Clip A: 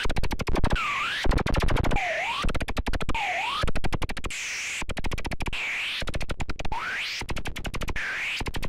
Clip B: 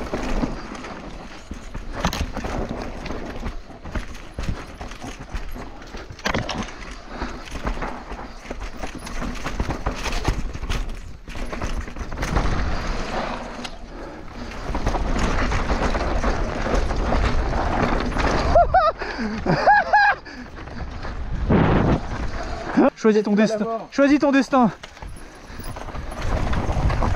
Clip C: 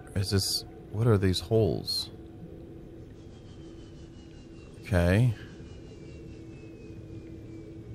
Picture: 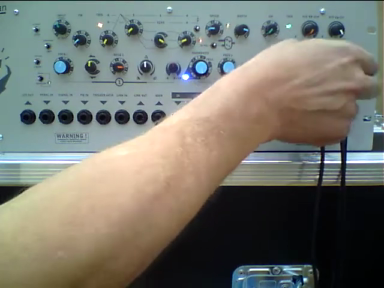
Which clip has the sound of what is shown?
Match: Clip A